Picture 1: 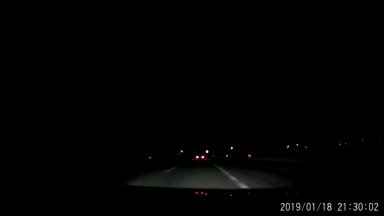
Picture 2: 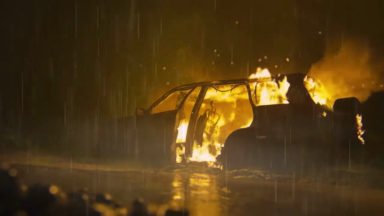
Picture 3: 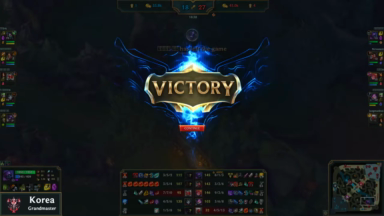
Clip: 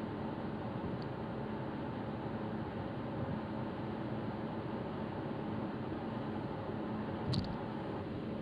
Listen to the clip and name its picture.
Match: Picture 1